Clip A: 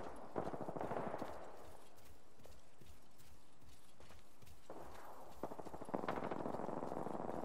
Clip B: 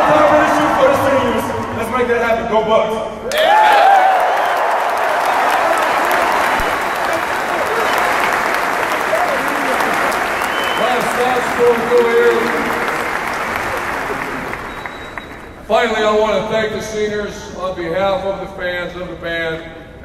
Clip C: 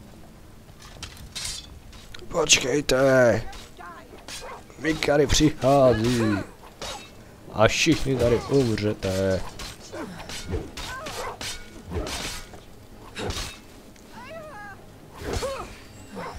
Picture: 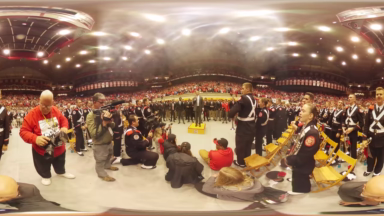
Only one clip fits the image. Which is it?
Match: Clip B